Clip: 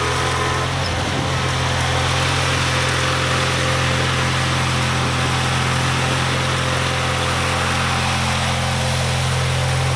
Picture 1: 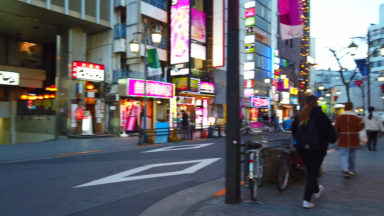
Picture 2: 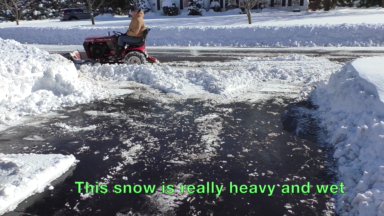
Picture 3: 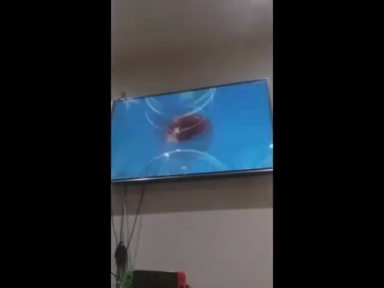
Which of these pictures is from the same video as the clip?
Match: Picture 2